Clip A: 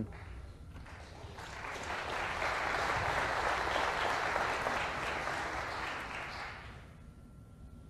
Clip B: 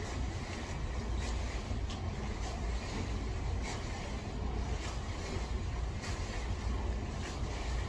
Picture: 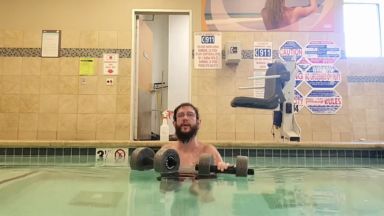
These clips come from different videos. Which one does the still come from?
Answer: B